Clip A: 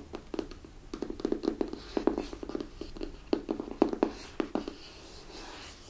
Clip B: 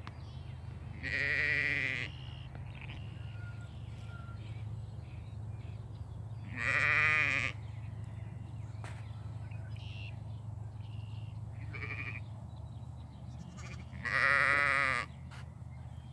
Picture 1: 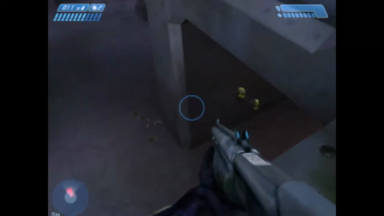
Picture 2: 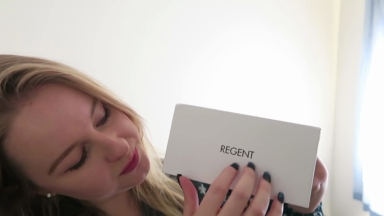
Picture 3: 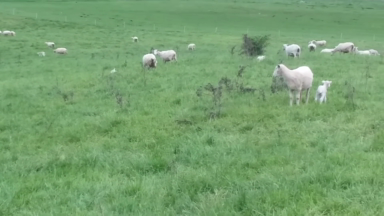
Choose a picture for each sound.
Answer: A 2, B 3